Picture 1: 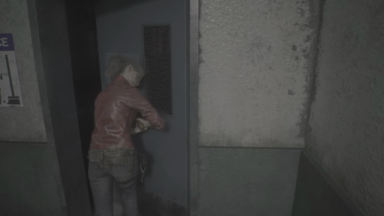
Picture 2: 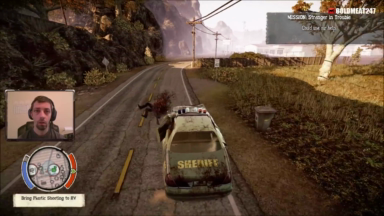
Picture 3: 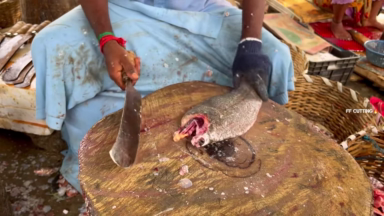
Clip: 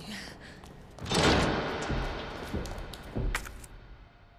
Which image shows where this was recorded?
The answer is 1